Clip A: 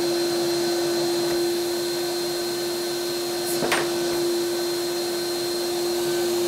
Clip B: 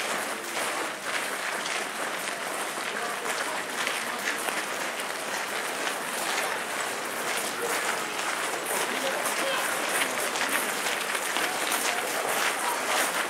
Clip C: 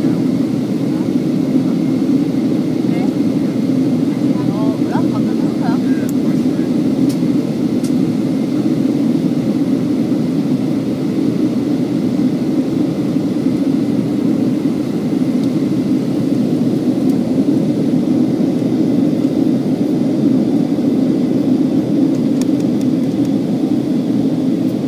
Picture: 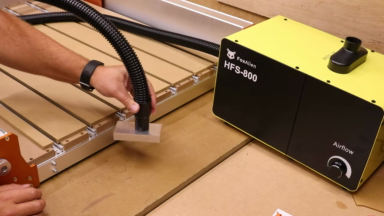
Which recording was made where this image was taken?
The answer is A